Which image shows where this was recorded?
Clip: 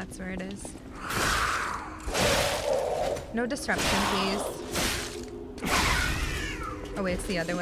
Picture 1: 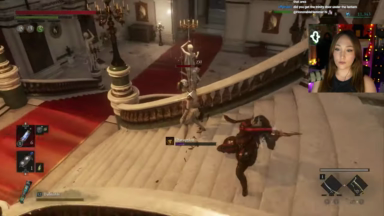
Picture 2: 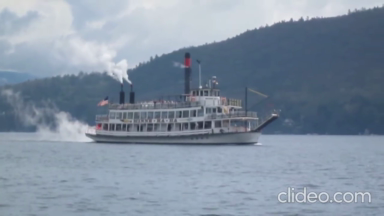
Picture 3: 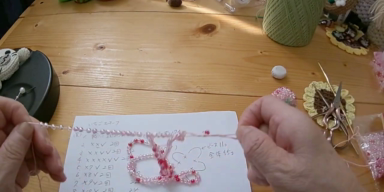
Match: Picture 1